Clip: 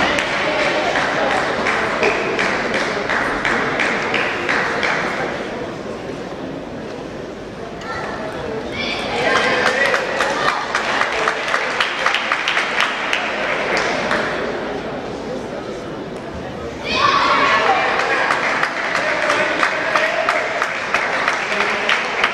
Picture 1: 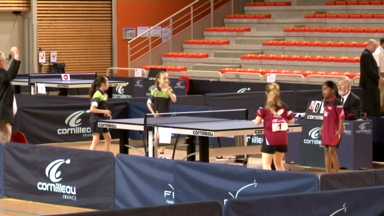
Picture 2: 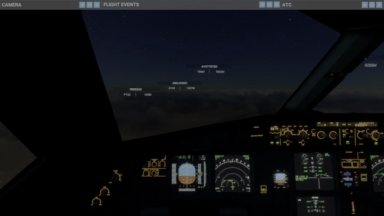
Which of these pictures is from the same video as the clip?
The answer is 1